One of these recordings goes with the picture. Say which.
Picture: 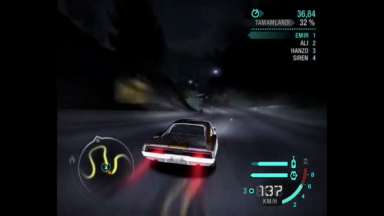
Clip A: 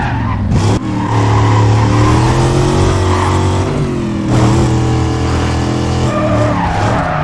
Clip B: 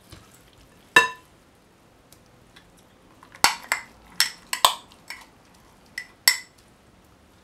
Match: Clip A